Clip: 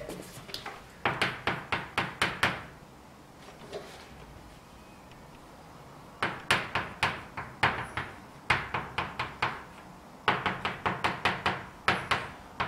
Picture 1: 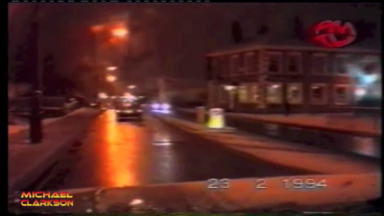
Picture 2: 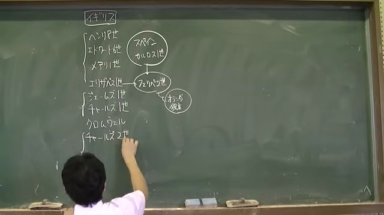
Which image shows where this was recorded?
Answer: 2